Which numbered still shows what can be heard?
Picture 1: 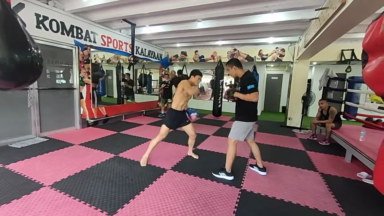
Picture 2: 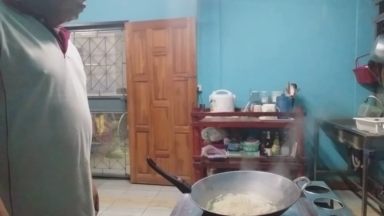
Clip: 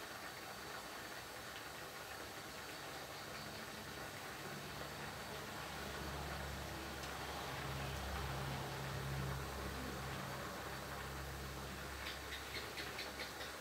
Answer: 2